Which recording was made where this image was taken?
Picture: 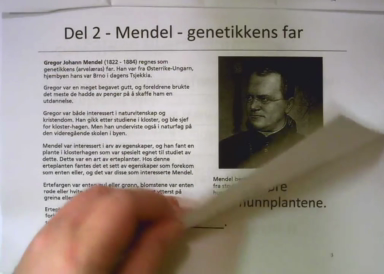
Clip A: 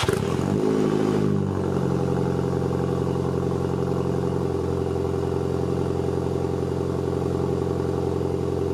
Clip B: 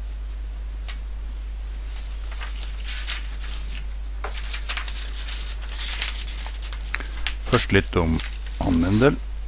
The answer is B